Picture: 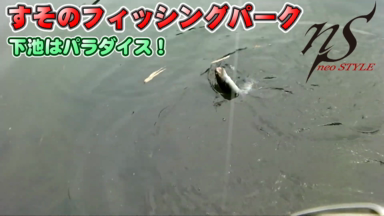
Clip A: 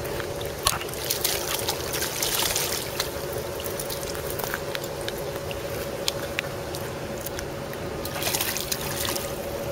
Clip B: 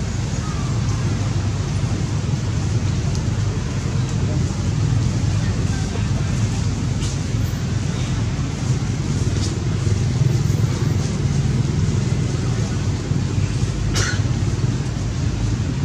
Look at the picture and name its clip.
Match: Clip A